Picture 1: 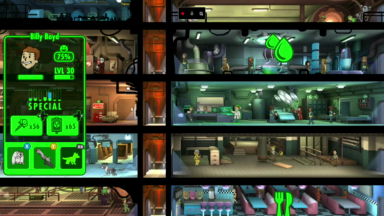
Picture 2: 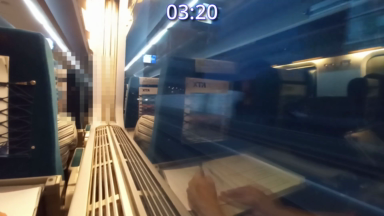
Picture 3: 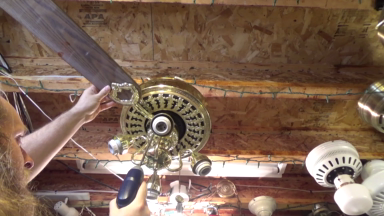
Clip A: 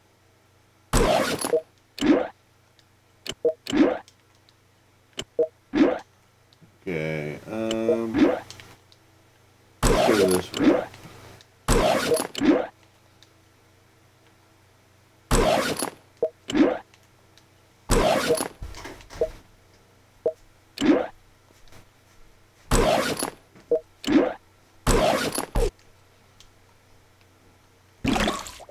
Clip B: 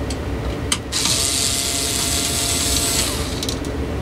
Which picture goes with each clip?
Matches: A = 1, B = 3